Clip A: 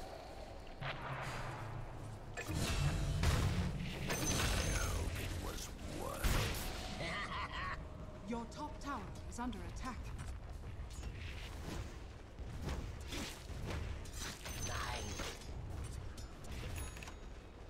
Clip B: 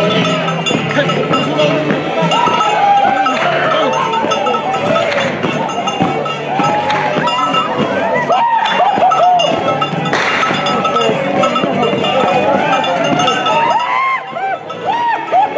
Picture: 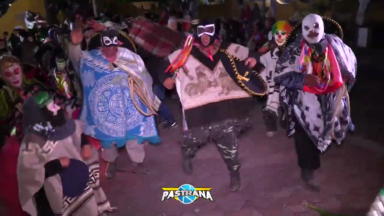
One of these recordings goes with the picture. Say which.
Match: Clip B